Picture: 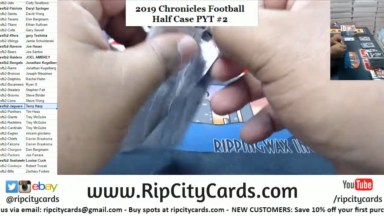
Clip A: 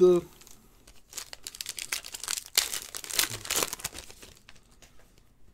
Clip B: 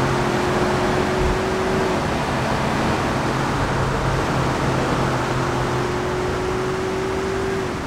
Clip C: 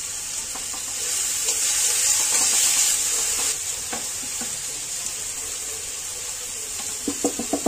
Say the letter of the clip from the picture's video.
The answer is A